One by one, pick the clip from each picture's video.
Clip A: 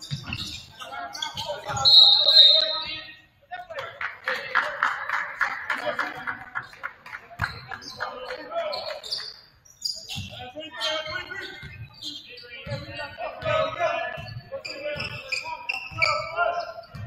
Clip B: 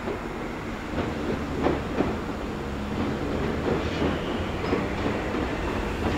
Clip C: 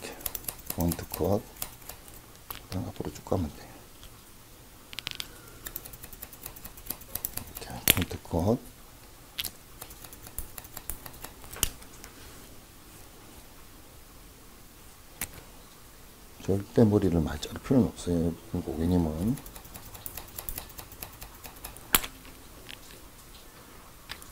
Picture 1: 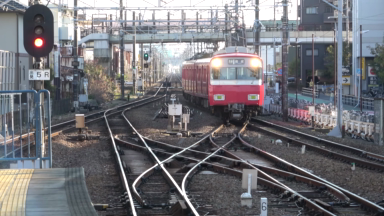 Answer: B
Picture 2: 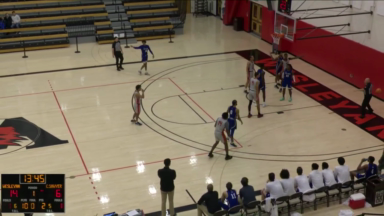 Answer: A